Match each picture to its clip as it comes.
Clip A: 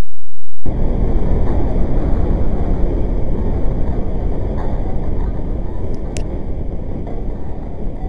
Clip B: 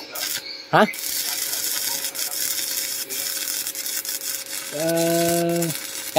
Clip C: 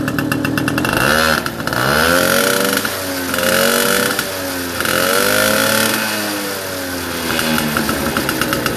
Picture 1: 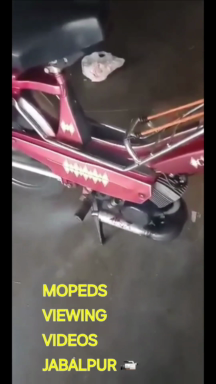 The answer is C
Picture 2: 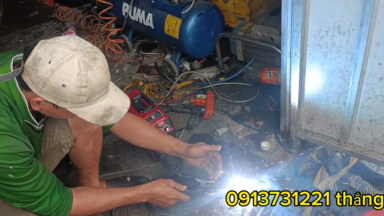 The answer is B